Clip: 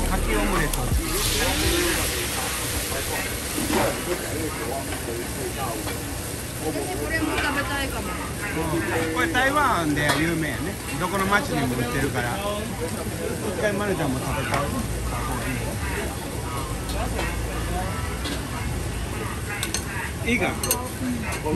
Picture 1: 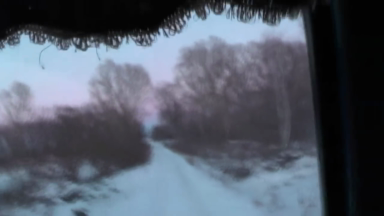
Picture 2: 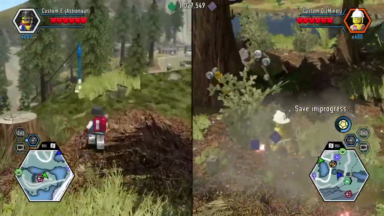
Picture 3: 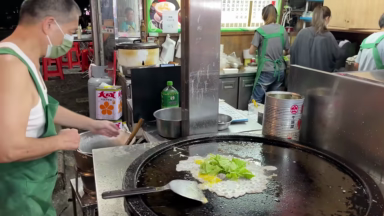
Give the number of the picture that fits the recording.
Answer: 3